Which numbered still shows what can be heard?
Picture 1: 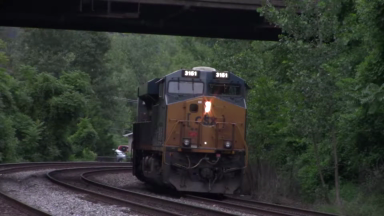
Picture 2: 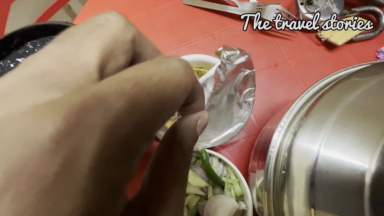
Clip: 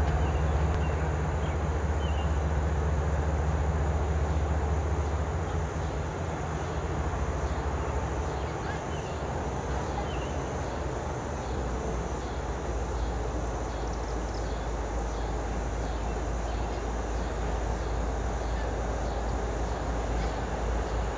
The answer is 1